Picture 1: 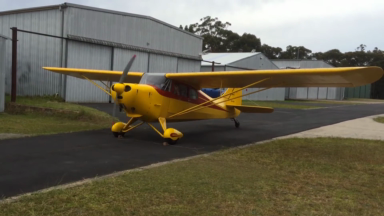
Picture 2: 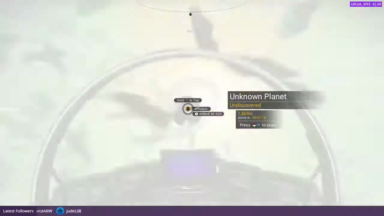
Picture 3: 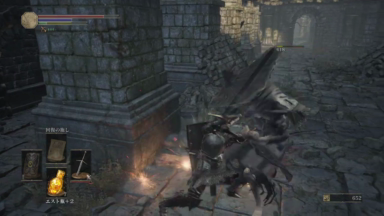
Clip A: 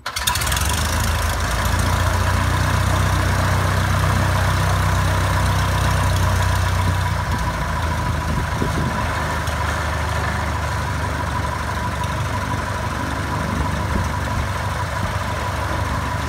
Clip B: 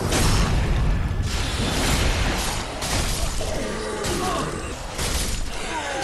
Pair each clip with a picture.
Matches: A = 1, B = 3